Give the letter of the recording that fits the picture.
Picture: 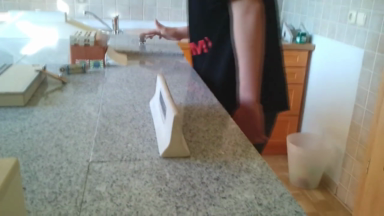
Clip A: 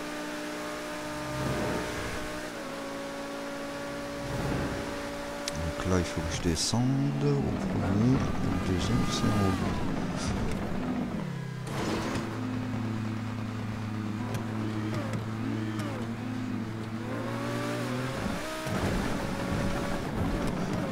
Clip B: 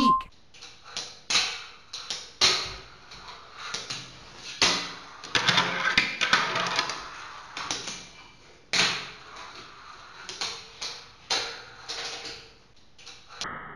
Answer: B